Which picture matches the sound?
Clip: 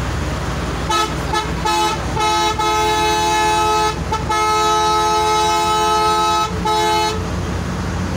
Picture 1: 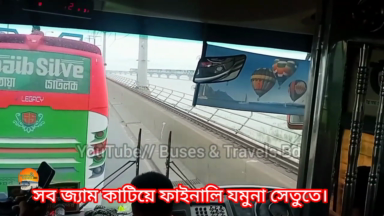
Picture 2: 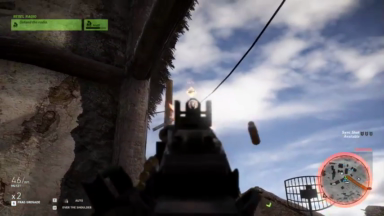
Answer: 1